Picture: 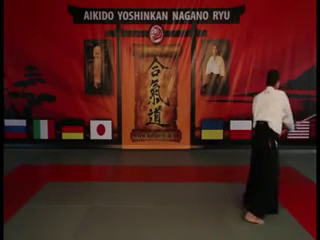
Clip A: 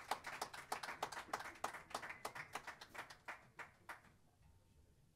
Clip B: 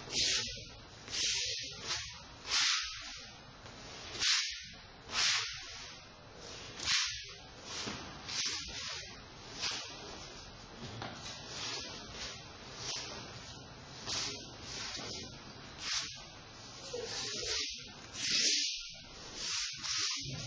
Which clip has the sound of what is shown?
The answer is B